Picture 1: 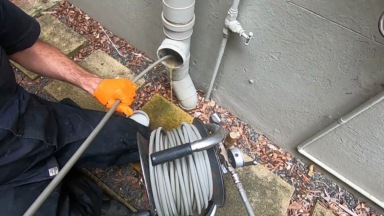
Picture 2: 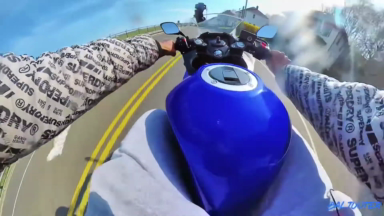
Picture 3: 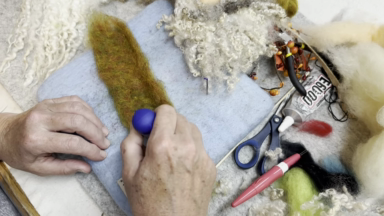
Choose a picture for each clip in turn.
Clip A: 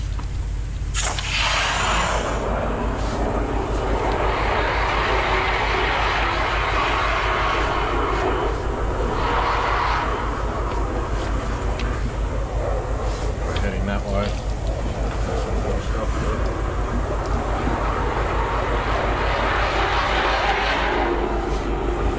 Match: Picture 1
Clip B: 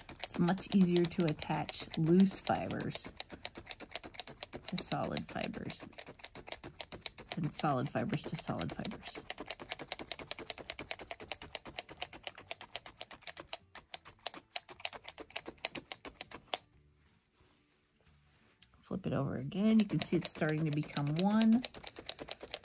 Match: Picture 3